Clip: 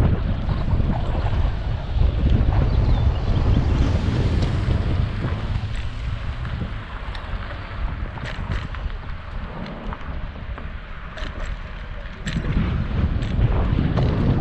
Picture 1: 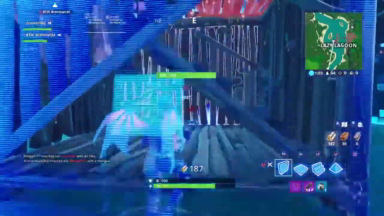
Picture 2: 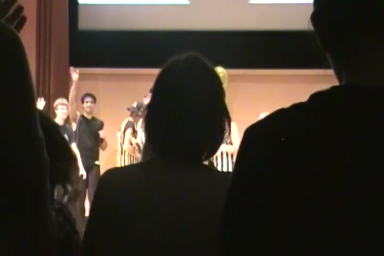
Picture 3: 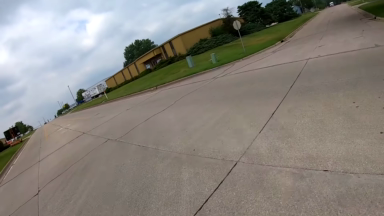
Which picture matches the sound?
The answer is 3